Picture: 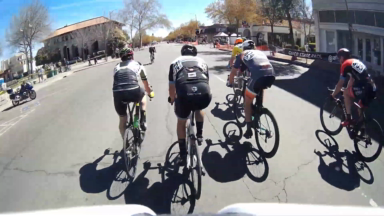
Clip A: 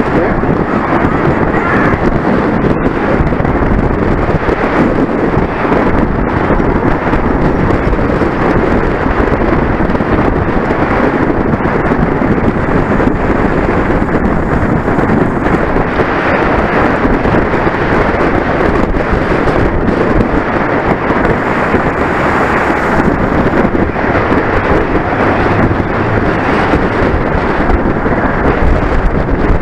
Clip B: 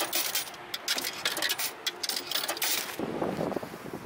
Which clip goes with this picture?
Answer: A